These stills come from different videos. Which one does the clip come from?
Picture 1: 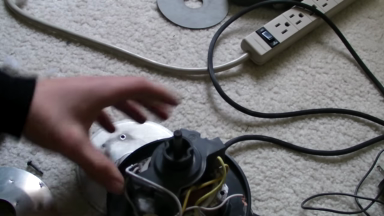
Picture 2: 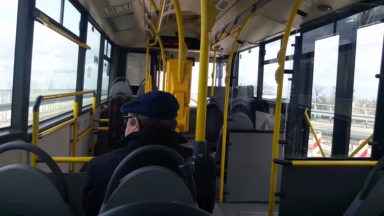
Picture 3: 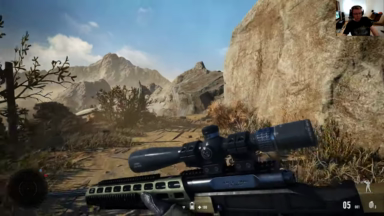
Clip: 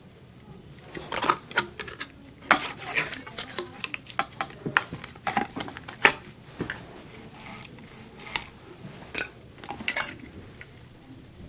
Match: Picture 1